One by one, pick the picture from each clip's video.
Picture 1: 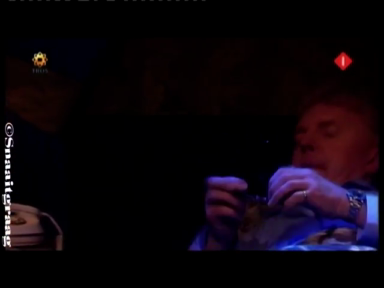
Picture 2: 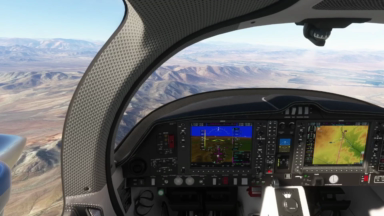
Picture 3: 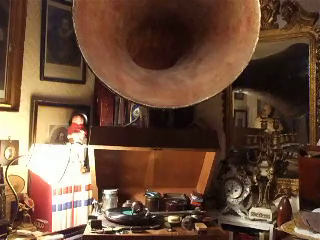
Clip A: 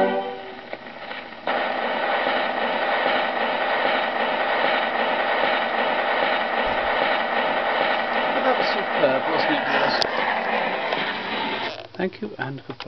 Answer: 3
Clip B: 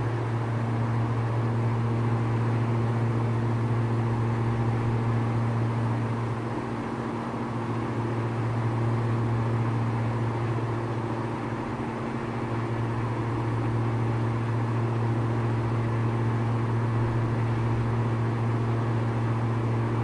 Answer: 2